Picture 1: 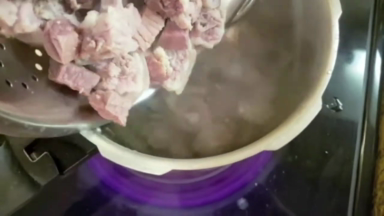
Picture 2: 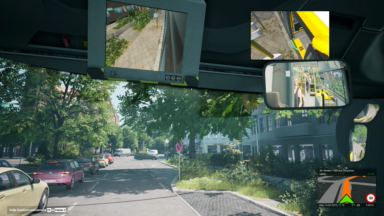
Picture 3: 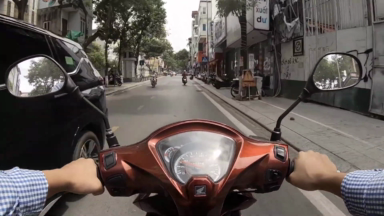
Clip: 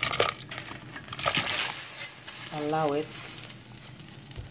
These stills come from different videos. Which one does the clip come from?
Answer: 1